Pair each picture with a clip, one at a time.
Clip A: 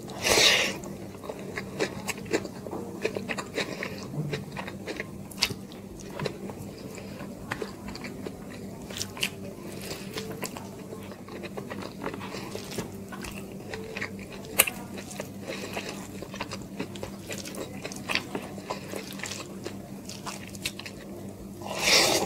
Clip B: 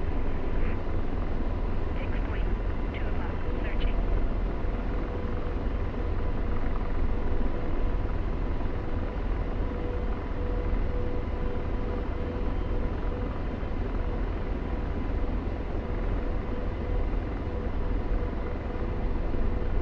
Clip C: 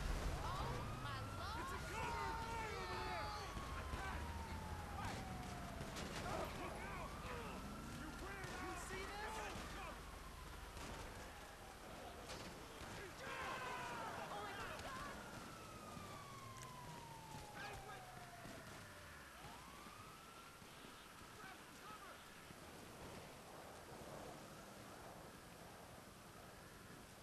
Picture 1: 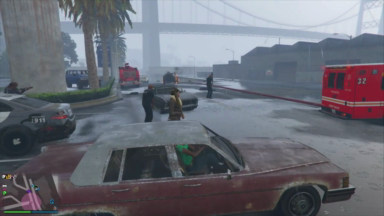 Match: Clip C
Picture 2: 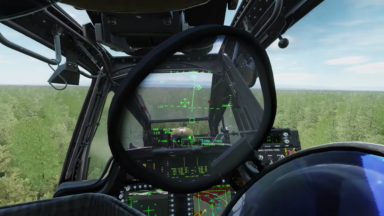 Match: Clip B